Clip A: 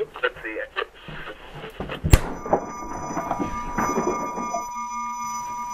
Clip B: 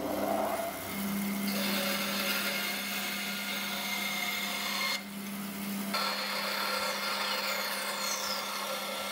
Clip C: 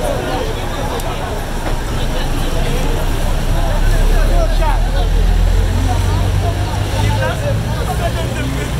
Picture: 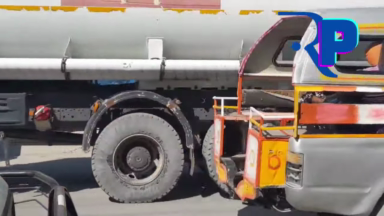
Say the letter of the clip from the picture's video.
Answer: C